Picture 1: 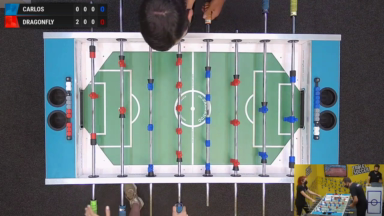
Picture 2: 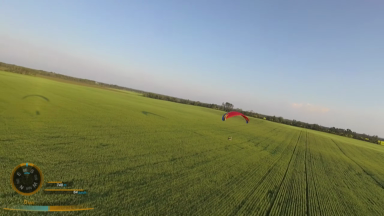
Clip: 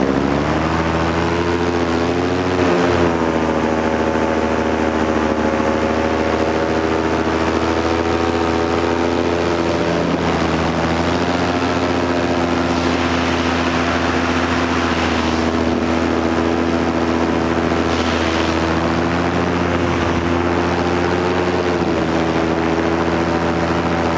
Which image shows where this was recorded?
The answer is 2